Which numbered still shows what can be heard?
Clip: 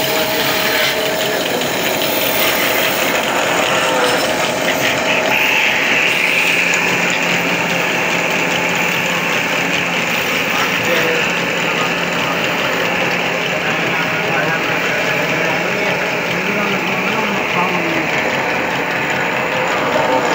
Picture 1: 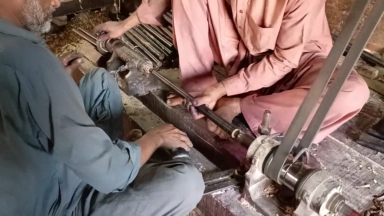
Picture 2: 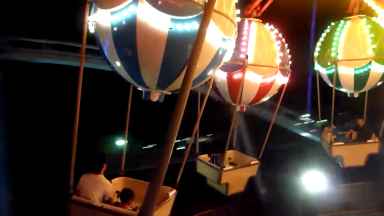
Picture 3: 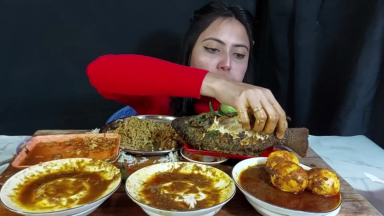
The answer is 1